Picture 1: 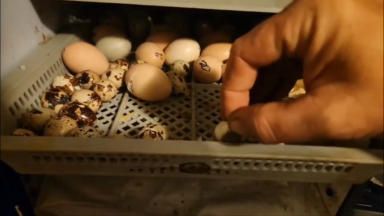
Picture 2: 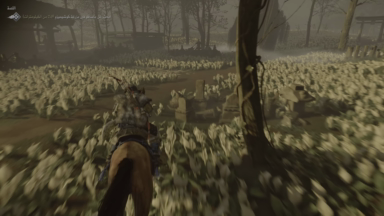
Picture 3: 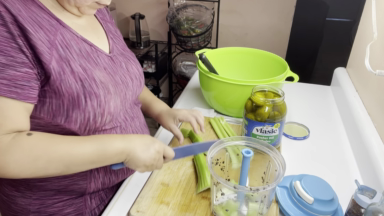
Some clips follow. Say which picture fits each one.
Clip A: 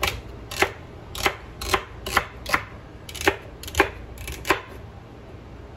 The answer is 3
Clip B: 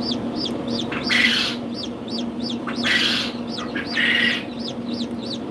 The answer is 1